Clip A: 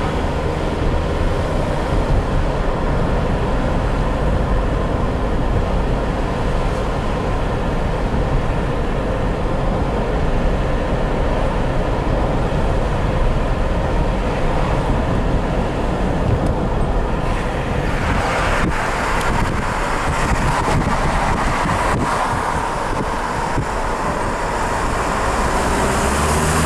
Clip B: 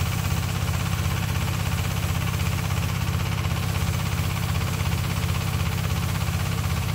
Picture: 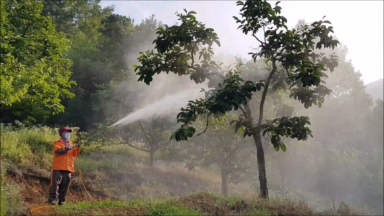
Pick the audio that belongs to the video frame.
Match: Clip B